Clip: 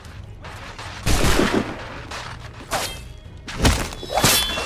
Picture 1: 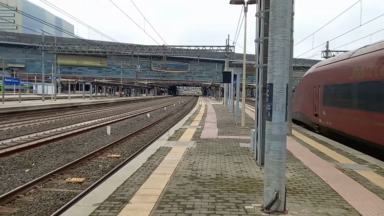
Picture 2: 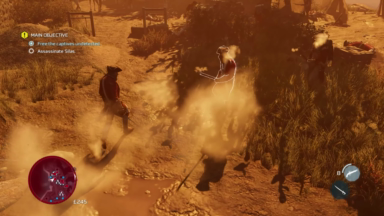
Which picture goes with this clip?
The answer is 2